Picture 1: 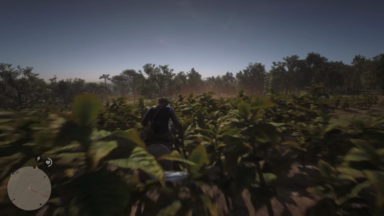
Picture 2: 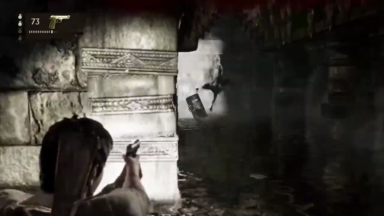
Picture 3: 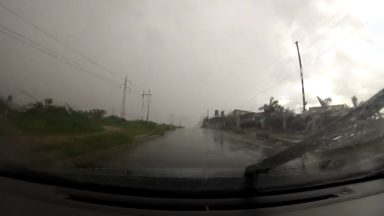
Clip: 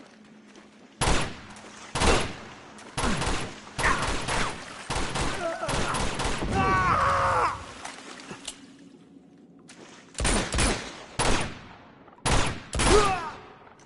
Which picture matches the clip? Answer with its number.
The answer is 2